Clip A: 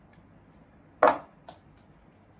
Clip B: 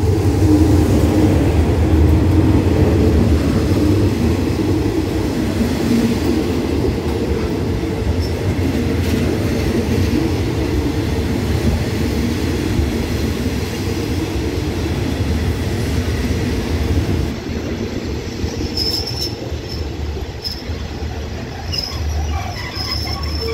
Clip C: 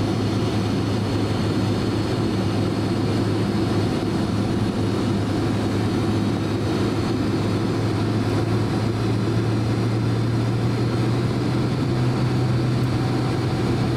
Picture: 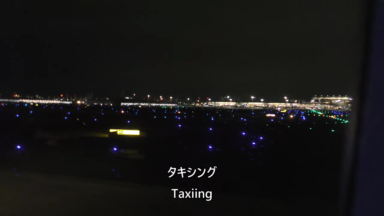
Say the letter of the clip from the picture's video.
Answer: C